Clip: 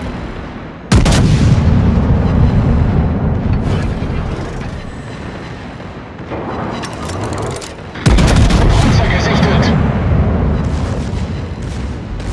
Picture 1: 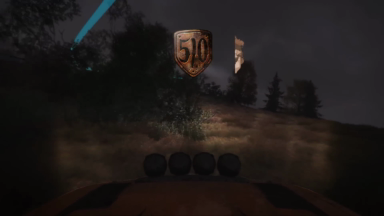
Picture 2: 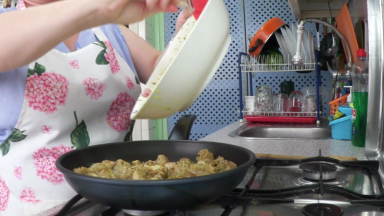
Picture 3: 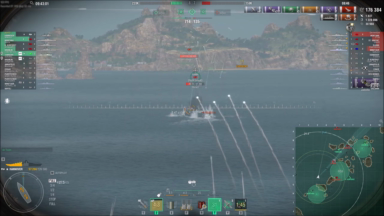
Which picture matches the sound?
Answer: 3